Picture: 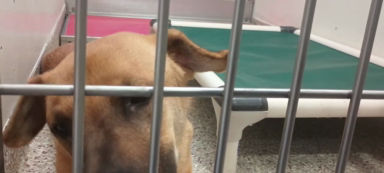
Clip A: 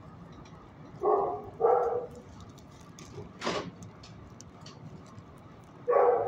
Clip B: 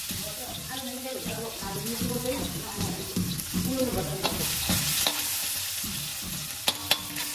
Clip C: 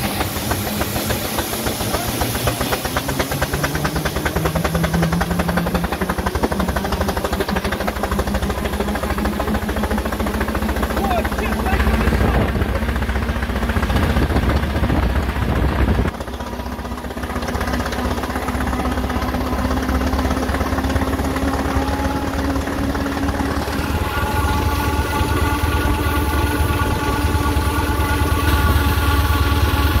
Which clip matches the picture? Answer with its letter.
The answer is A